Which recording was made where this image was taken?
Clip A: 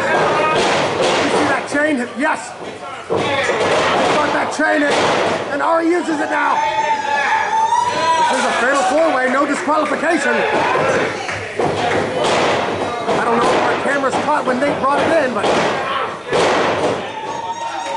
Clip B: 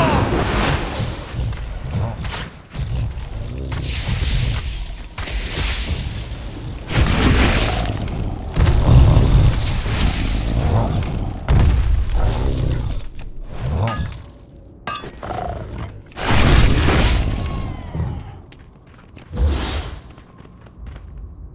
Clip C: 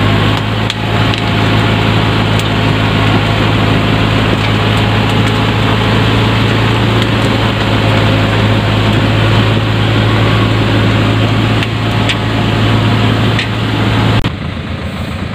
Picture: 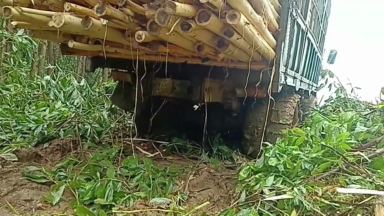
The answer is C